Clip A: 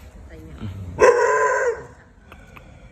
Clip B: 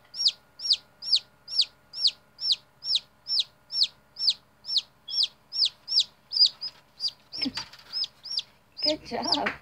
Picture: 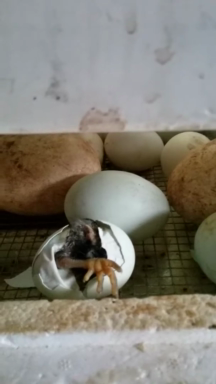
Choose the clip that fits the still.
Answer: B